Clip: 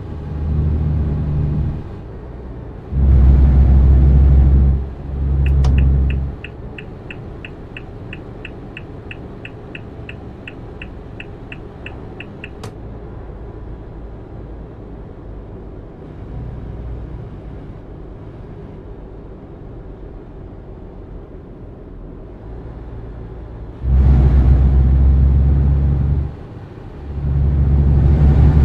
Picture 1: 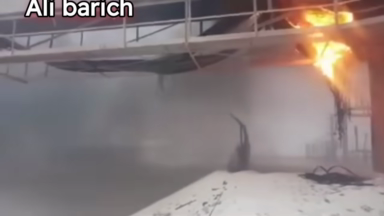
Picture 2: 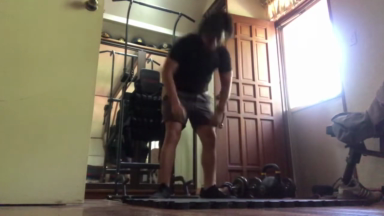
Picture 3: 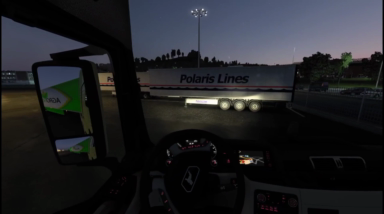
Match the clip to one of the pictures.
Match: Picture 3